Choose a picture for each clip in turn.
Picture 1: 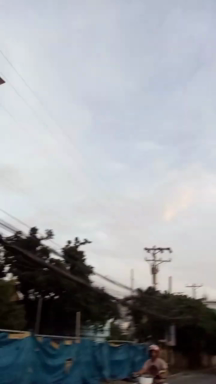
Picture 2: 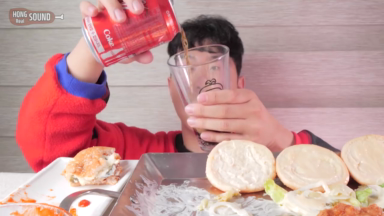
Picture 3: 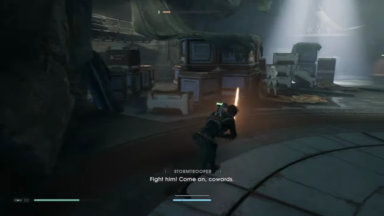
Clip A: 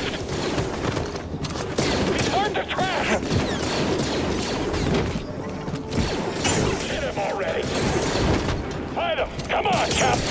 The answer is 3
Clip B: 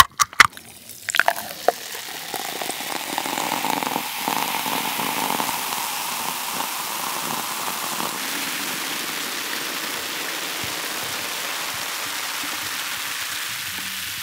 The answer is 2